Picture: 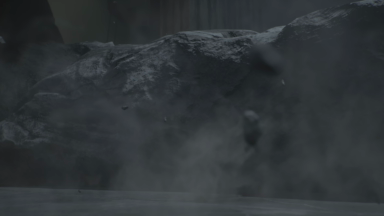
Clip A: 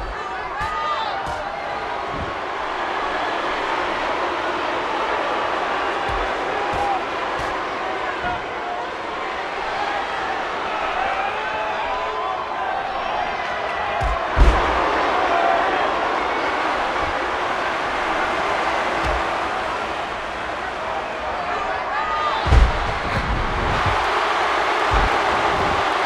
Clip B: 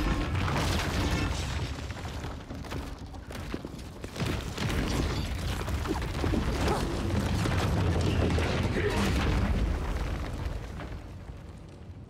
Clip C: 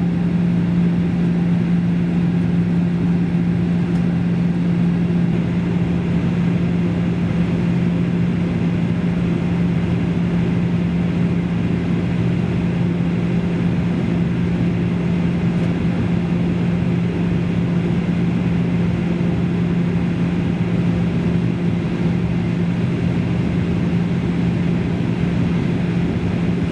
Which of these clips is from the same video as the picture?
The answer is B